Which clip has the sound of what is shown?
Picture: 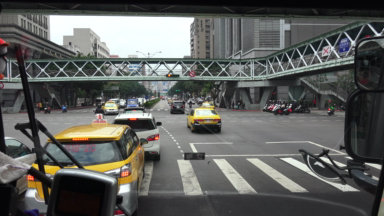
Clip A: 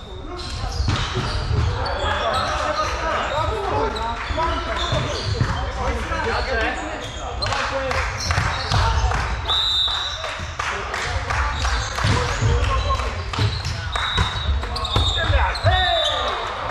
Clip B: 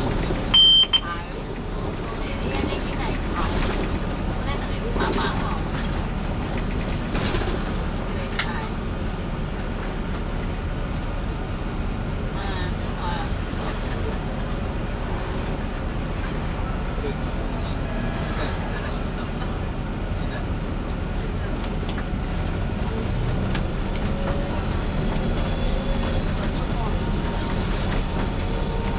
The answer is B